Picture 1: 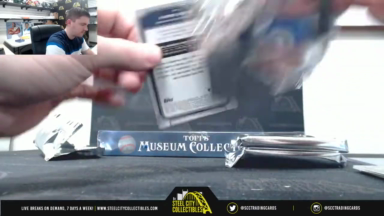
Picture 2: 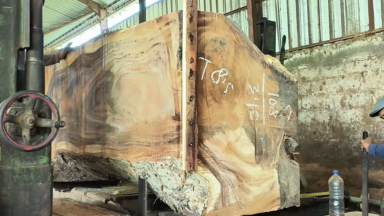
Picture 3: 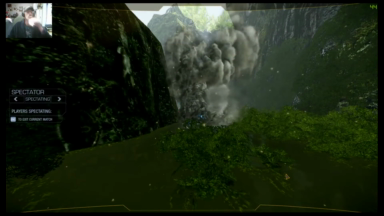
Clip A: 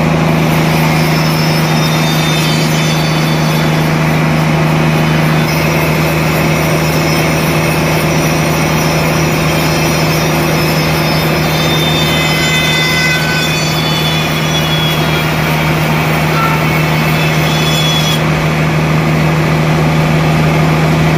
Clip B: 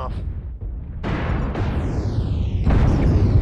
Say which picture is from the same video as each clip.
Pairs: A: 2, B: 3